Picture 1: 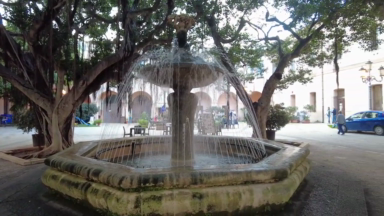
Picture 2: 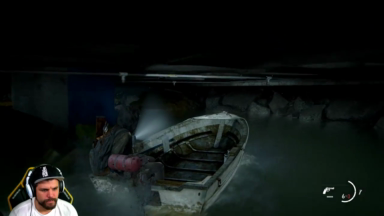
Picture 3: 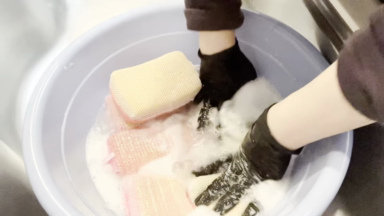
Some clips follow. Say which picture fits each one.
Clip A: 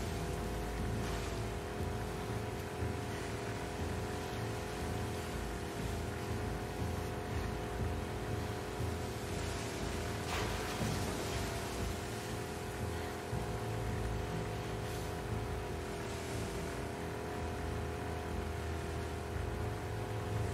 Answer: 2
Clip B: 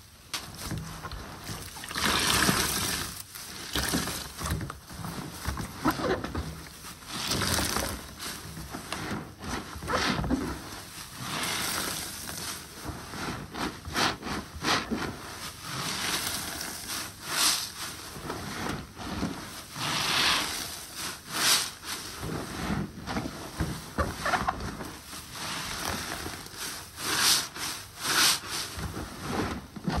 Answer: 3